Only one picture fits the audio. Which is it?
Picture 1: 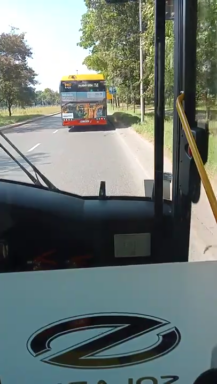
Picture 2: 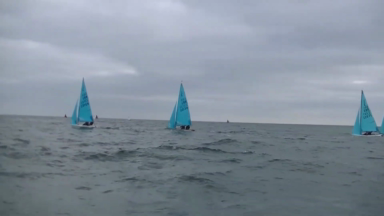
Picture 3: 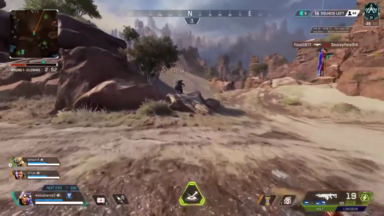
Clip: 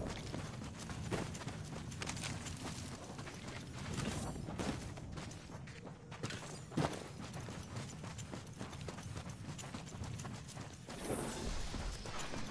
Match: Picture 3